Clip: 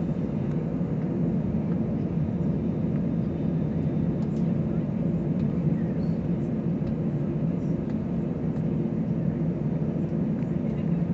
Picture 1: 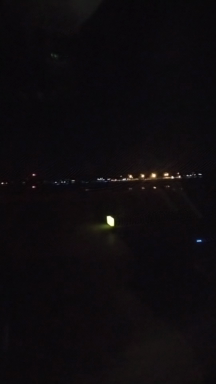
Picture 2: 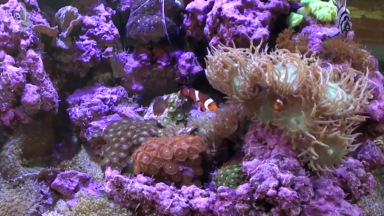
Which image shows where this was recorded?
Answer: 1